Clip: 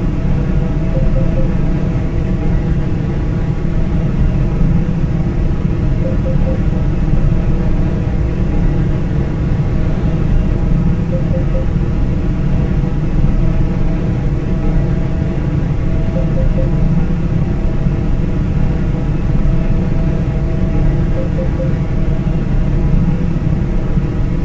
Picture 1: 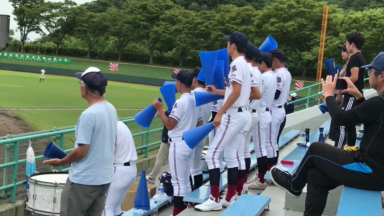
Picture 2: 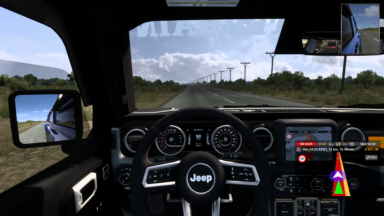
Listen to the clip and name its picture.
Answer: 2